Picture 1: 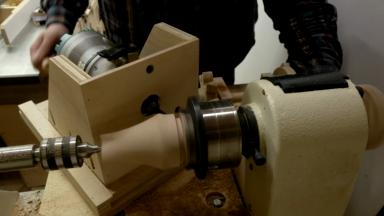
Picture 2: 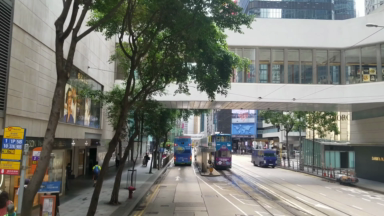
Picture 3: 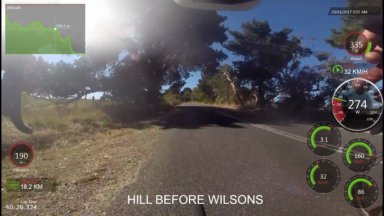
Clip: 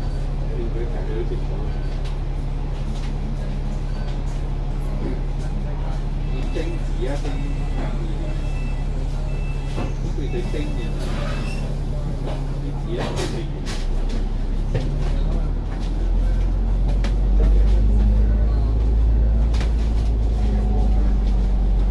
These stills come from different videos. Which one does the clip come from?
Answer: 2